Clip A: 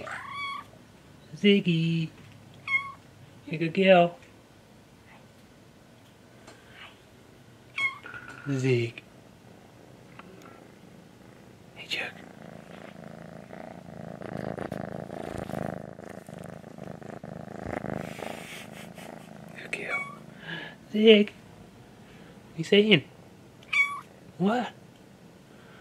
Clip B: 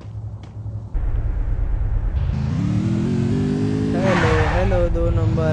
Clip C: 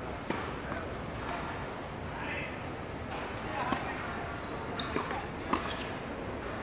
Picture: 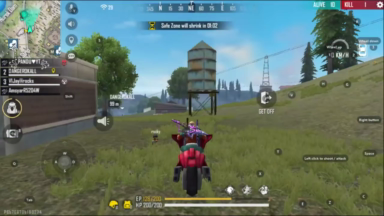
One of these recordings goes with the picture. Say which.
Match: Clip B